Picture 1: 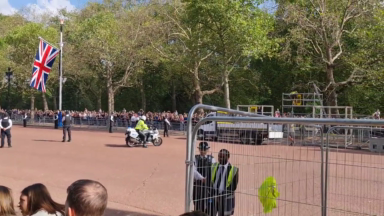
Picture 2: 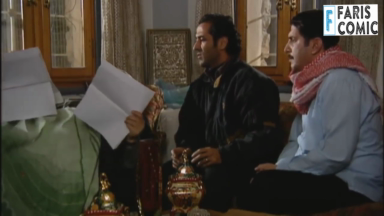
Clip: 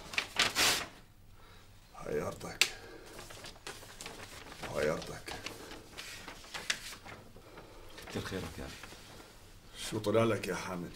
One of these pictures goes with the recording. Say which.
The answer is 2